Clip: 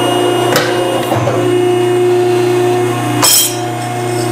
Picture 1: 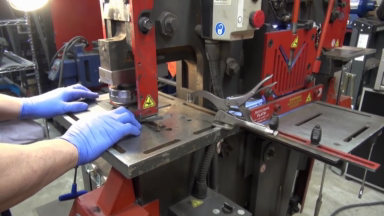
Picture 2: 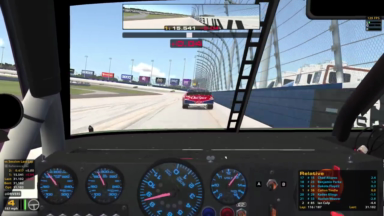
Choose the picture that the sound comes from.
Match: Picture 1